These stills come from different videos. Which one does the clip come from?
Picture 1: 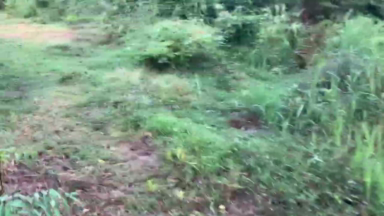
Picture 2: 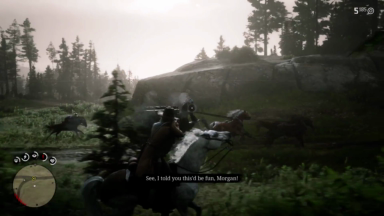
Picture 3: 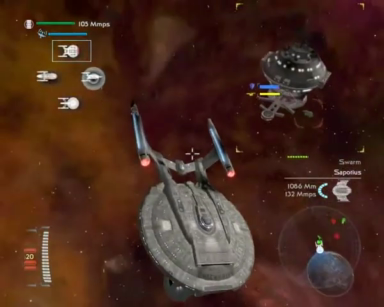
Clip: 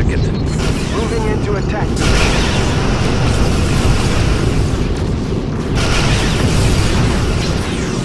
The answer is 3